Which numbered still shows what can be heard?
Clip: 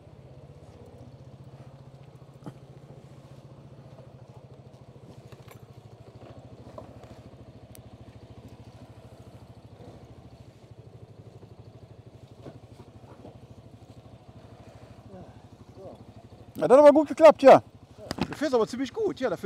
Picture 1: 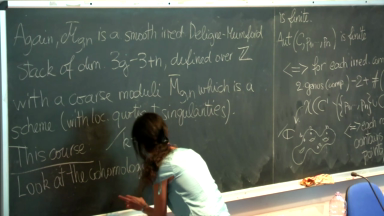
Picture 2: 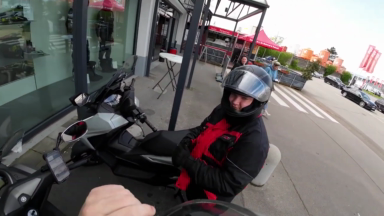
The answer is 2